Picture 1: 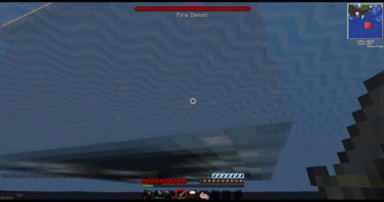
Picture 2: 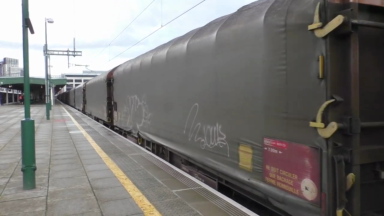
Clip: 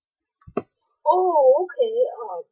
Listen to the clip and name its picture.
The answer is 1